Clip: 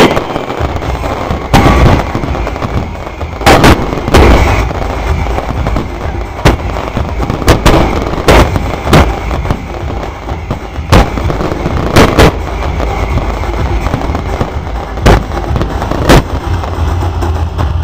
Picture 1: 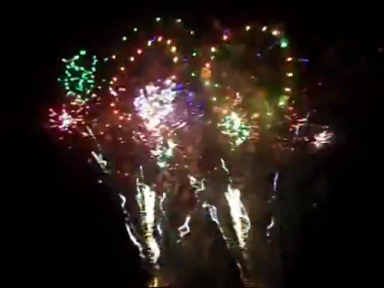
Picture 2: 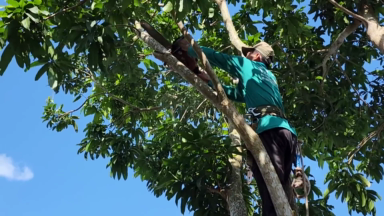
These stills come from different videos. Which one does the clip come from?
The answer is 1